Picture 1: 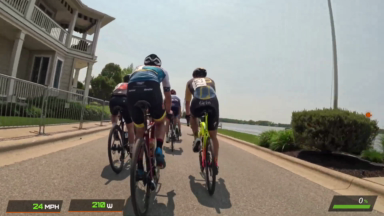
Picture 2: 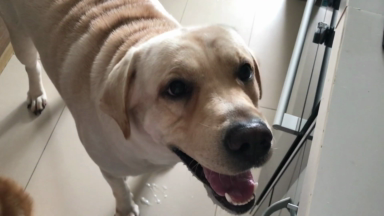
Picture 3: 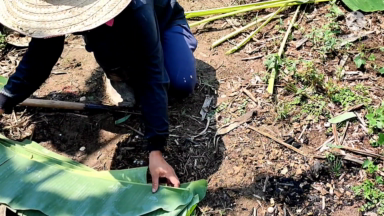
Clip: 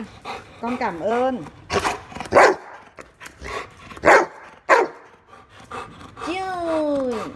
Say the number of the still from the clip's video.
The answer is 2